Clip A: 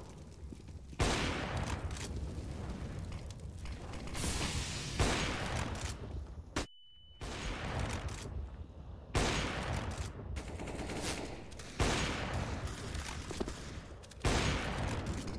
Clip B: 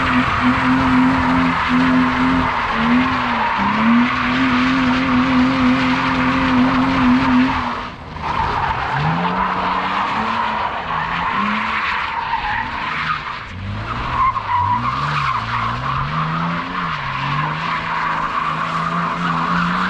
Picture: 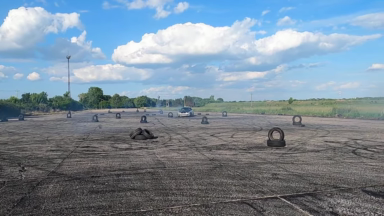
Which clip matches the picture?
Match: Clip B